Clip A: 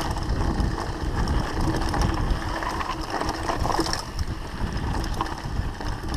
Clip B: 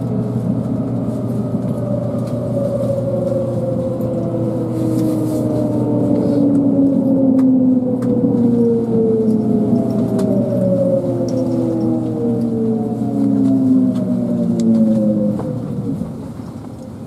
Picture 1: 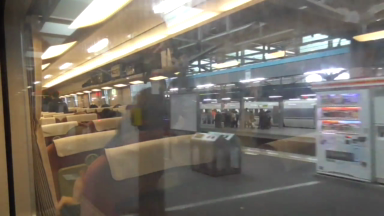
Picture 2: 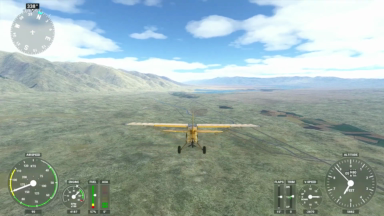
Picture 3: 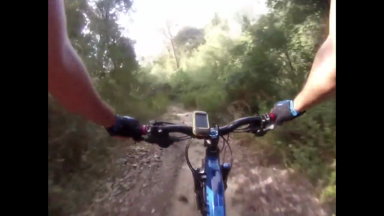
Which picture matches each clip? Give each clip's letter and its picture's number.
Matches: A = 3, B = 1